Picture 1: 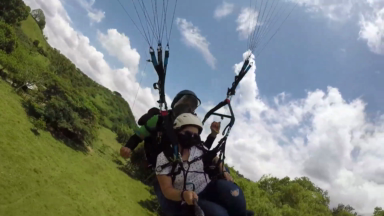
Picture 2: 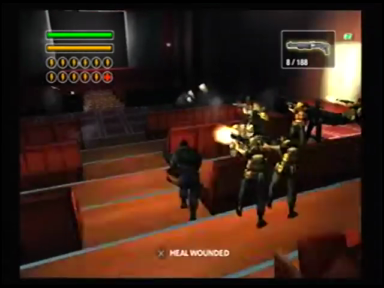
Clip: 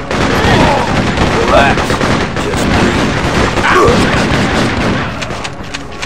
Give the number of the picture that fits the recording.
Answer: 2